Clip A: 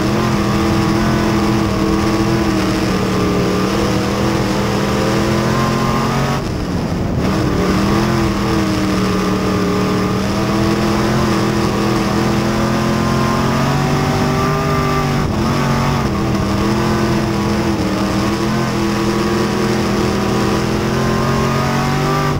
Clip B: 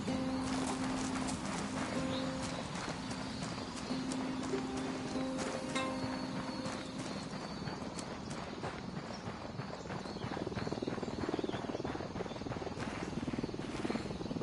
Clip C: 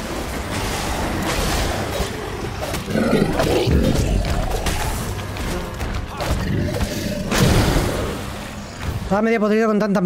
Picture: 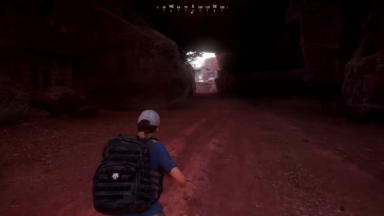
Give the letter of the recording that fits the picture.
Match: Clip B